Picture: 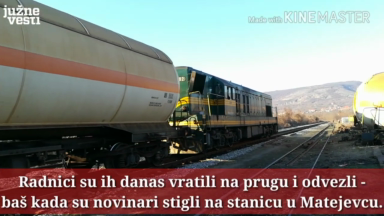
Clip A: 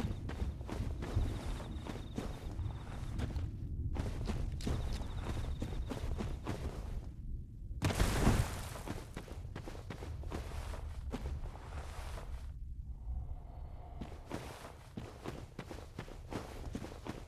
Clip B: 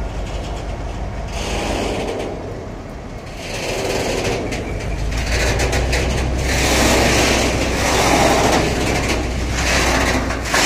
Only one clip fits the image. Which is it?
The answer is B